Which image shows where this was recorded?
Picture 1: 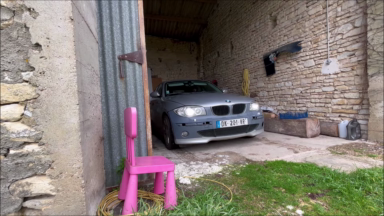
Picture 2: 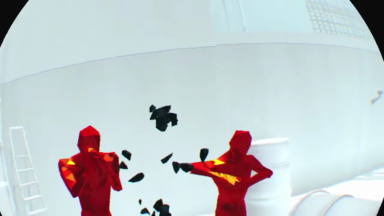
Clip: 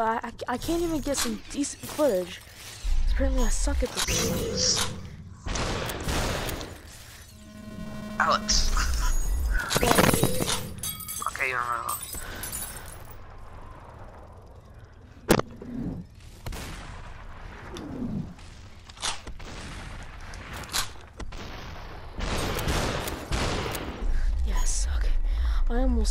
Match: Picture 2